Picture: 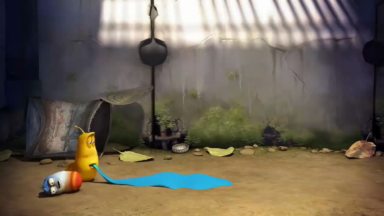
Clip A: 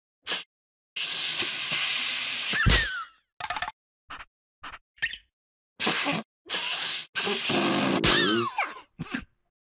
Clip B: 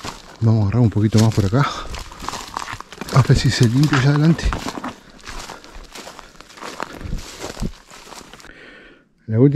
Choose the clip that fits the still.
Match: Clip A